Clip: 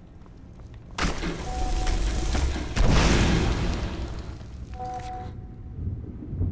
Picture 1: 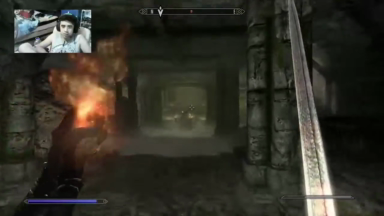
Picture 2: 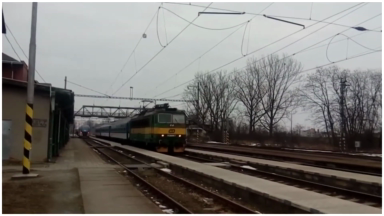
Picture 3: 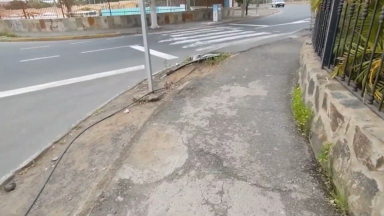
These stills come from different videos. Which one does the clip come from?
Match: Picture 1